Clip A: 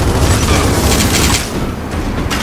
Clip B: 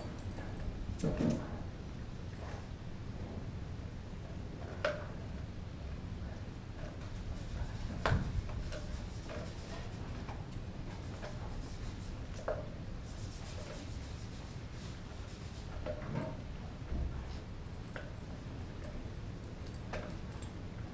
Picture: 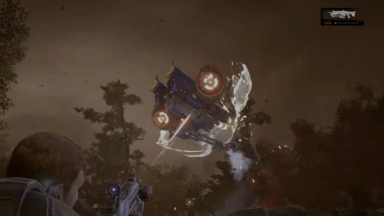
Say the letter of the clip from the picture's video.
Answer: A